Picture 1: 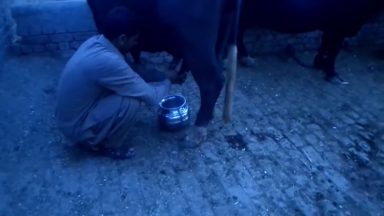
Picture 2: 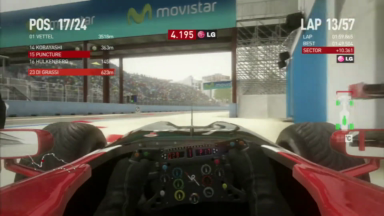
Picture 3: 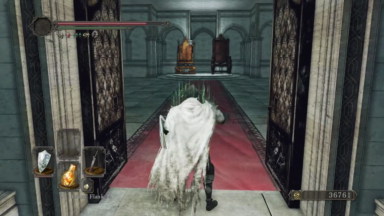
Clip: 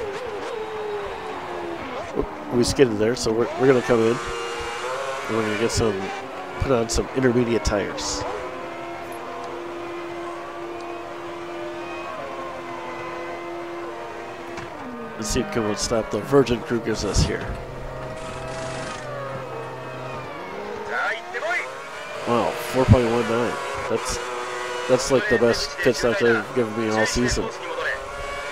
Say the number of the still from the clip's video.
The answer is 2